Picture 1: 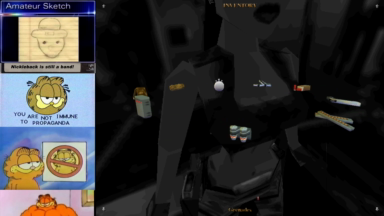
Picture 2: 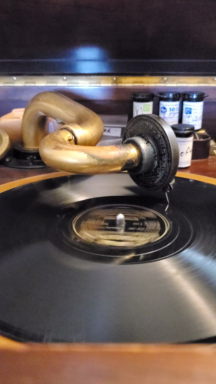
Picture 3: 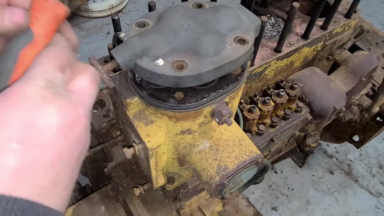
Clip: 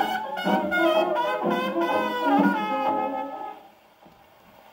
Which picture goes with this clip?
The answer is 2